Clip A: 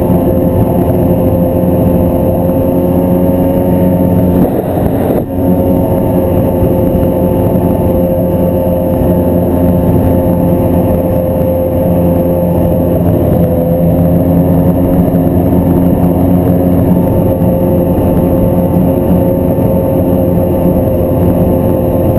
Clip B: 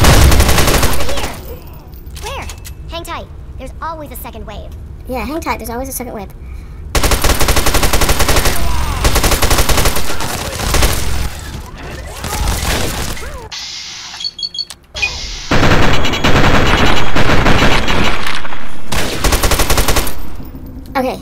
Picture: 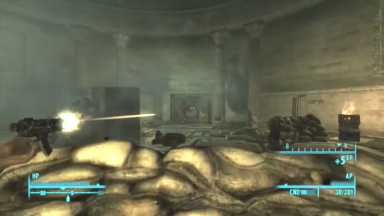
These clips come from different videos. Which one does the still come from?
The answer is B